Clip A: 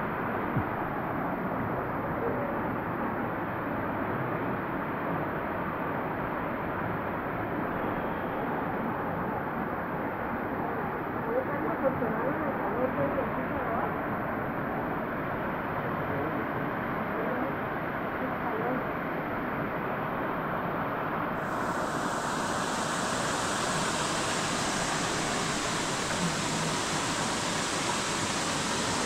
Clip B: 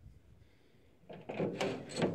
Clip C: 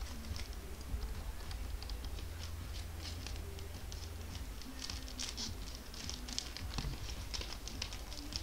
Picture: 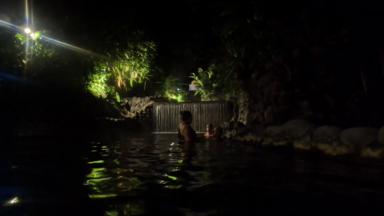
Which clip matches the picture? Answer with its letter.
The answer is A